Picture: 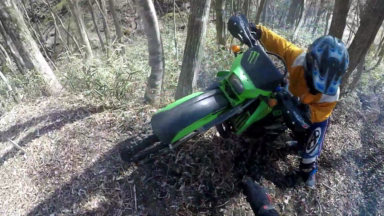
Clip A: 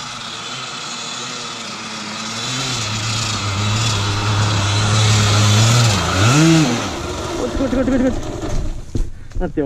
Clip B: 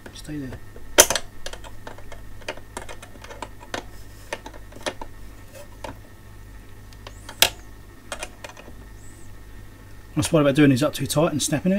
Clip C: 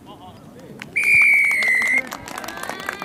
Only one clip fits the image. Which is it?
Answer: A